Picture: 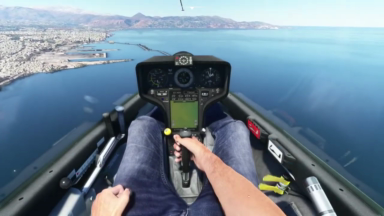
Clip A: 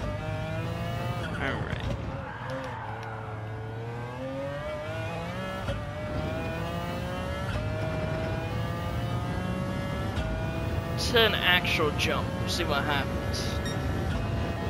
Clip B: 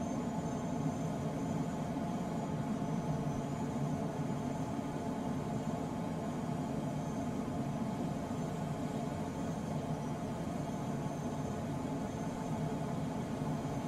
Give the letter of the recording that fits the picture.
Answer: B